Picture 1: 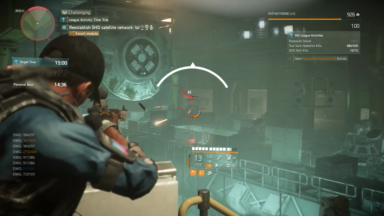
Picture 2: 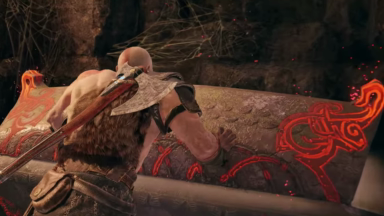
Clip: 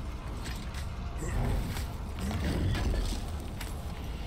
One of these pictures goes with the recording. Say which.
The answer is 2